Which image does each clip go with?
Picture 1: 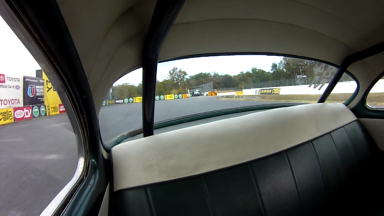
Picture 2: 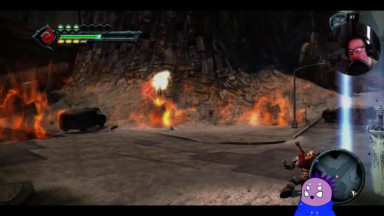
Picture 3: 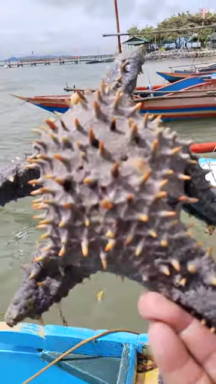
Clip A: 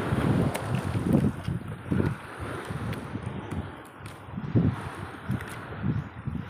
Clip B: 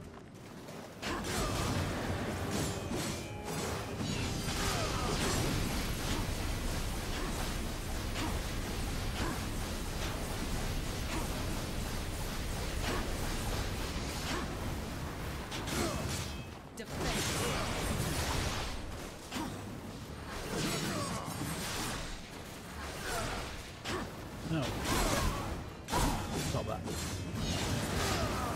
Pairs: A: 3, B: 2